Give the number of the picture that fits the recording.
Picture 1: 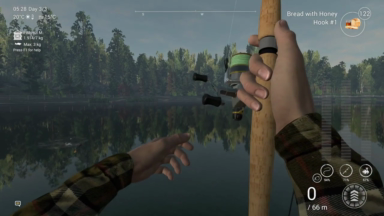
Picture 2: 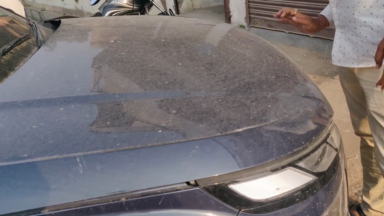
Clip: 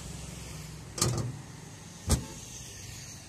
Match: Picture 2